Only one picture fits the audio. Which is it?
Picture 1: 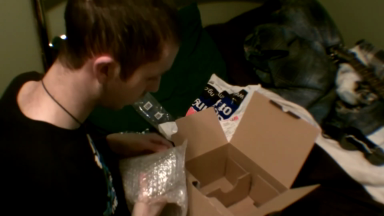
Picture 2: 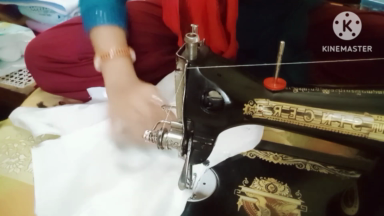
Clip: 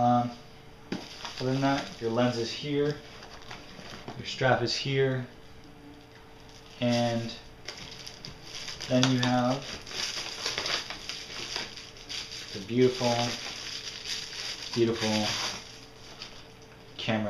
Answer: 1